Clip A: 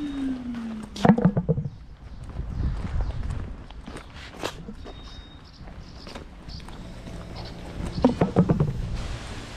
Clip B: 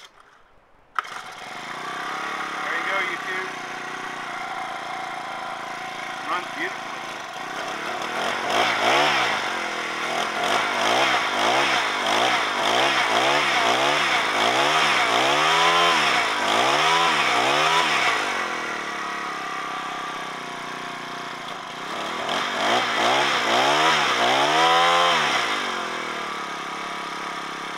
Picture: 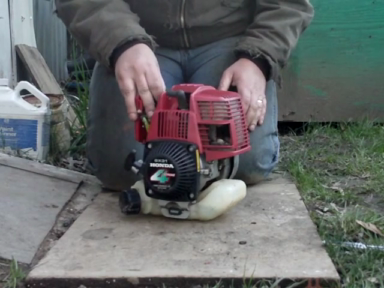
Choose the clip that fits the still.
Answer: B